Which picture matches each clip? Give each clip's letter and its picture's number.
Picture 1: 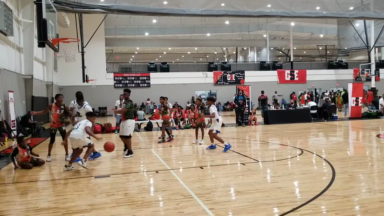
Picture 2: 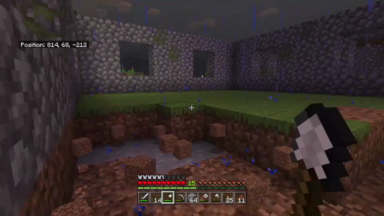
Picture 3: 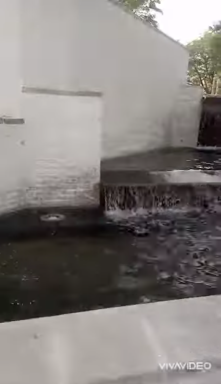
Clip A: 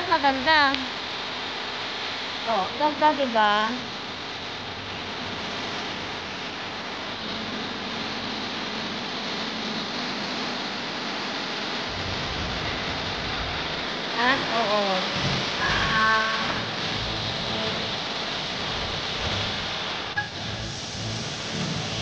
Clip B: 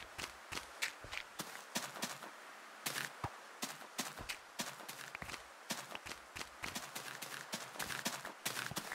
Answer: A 3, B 2